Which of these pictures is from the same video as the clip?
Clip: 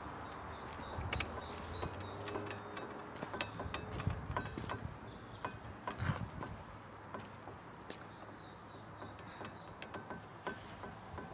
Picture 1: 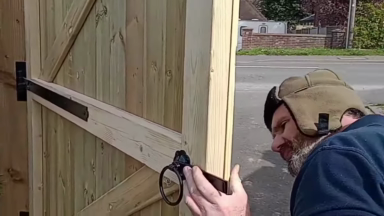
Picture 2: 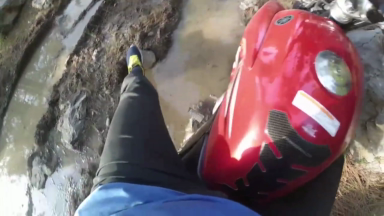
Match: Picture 1